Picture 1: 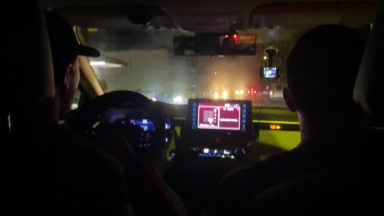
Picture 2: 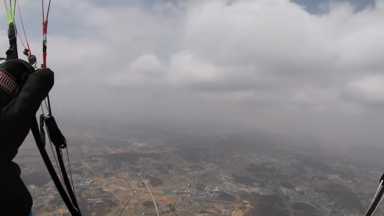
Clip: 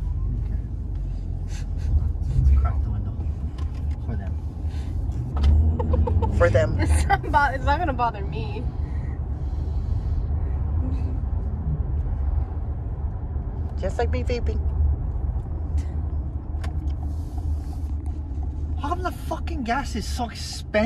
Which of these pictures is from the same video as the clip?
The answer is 1